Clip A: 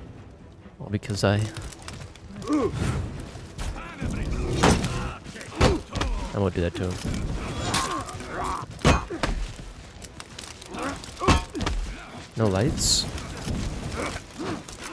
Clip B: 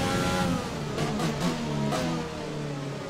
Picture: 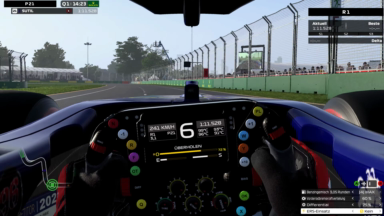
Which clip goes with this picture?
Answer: B